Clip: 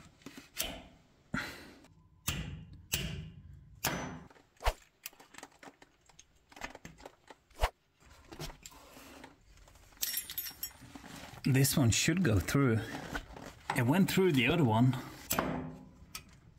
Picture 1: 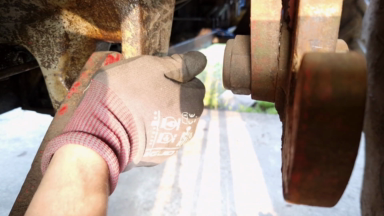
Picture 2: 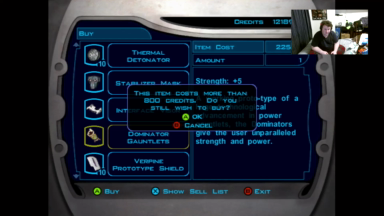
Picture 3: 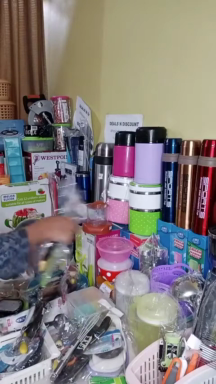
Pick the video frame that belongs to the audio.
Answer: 1